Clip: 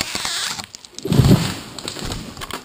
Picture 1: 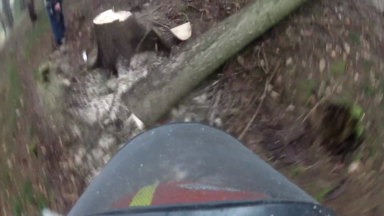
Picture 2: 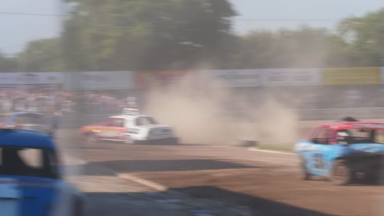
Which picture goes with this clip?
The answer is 1